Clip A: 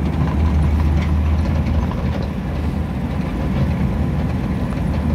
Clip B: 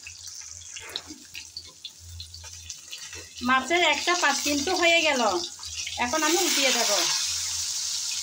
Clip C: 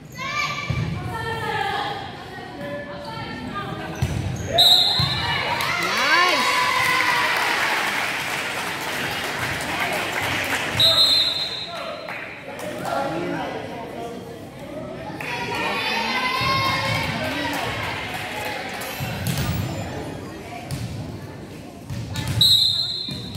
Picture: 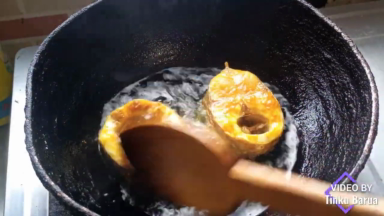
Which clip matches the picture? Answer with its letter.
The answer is B